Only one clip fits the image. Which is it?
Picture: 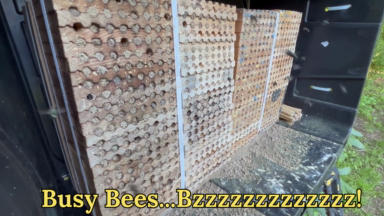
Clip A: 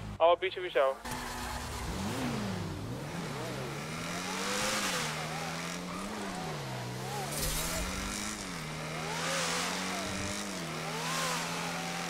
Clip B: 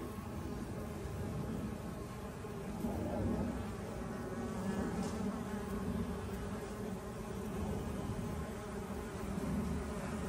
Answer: B